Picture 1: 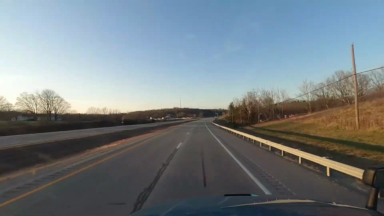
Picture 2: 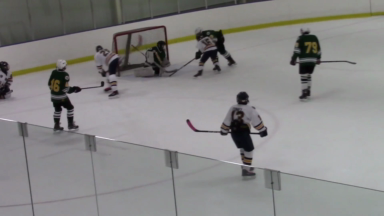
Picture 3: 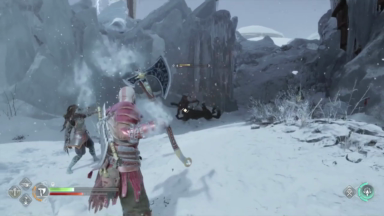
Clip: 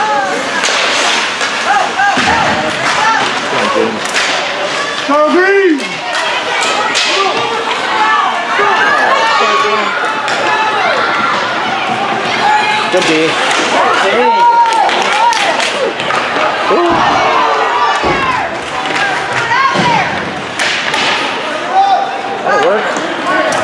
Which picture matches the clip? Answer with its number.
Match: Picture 2